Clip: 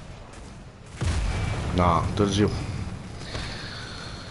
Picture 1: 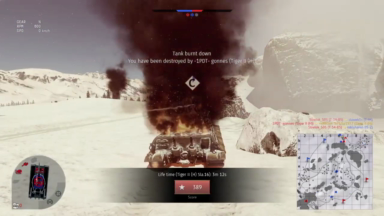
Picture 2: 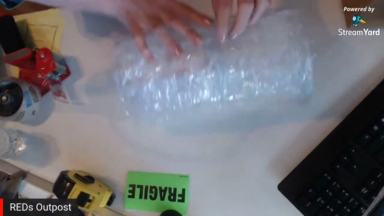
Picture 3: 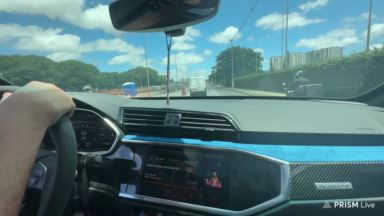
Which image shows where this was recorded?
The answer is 1